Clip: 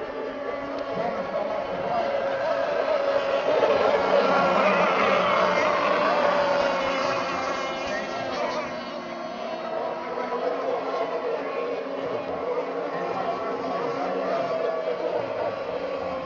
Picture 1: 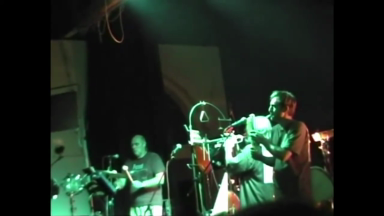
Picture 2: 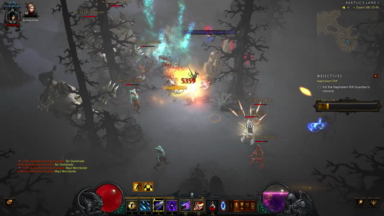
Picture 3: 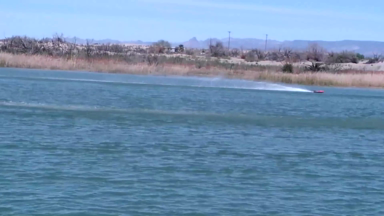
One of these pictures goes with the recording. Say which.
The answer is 3